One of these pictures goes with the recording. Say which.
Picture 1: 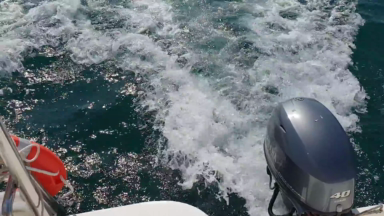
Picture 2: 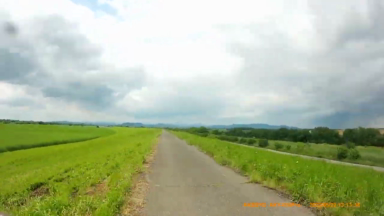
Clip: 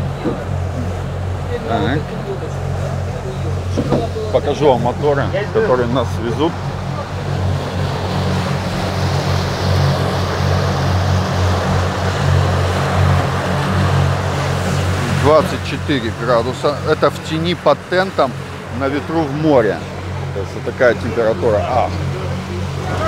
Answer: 1